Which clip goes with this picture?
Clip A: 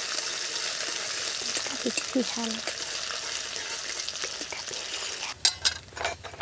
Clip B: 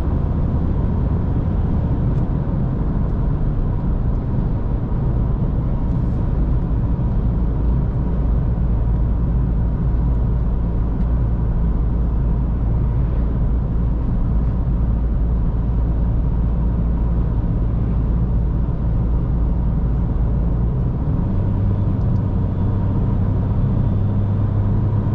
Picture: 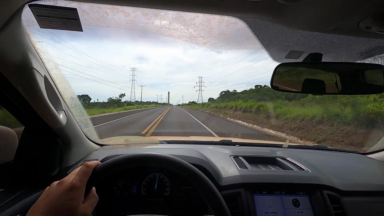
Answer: B